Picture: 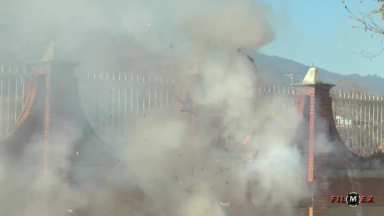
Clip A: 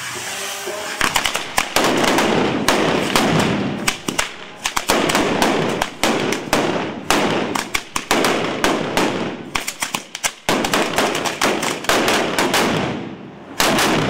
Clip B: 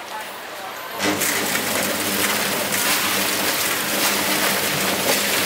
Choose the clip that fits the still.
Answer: A